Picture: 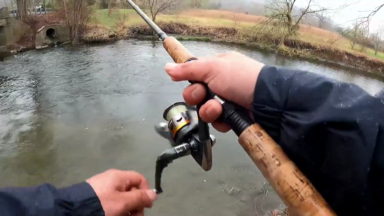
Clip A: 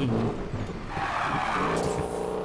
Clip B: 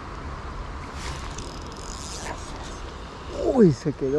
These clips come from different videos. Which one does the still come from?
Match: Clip B